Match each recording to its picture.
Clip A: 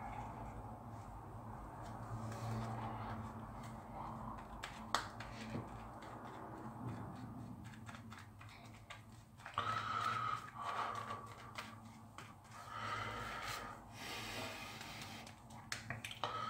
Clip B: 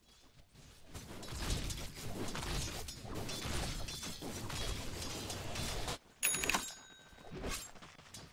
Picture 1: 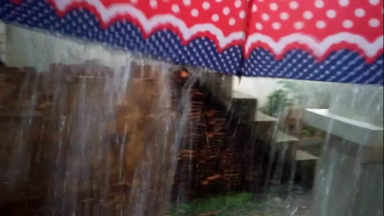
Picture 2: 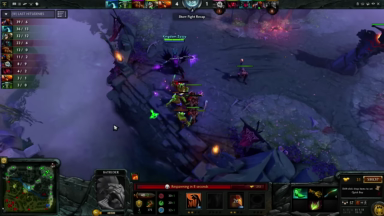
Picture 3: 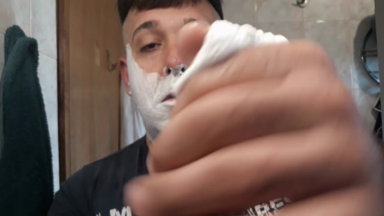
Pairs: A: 3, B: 2